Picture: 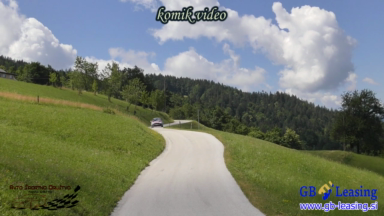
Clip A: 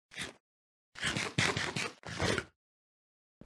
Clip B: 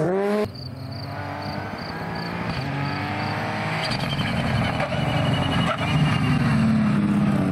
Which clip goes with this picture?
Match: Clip B